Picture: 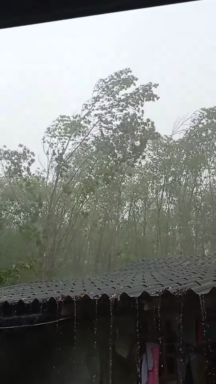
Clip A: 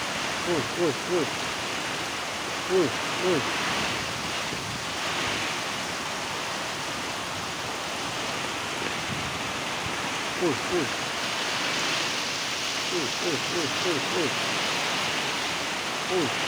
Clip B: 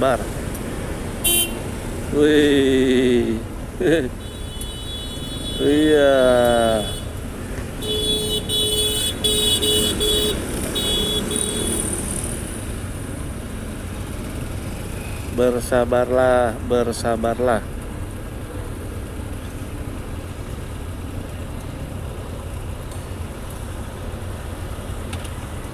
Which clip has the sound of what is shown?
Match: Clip A